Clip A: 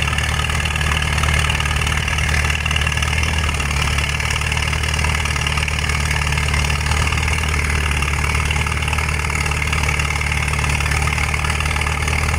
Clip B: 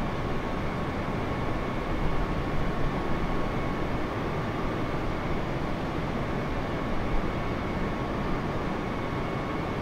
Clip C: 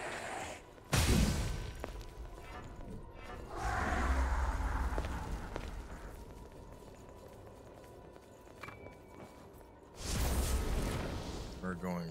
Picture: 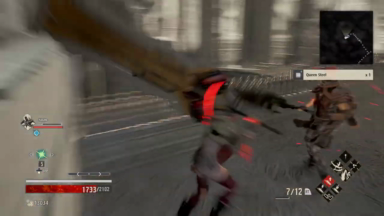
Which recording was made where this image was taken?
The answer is C